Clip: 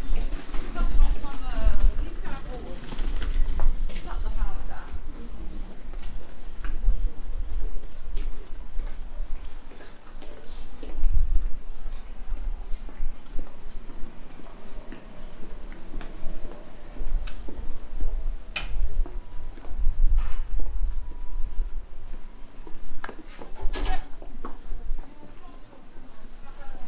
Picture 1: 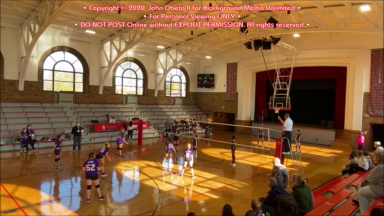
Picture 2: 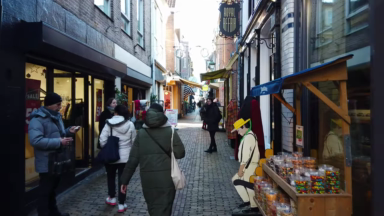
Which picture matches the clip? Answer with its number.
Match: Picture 2